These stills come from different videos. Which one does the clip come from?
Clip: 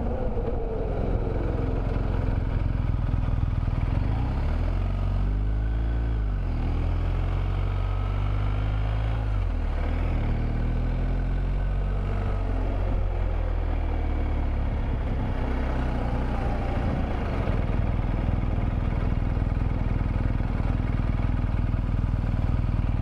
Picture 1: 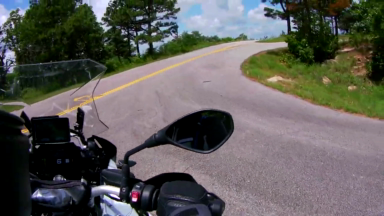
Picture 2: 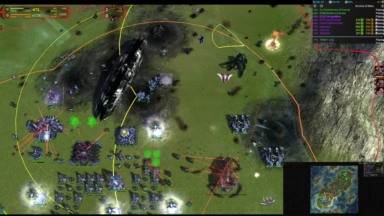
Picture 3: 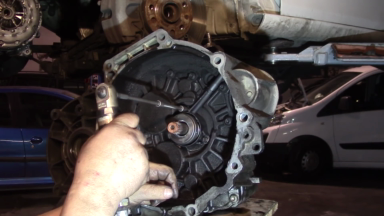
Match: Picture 1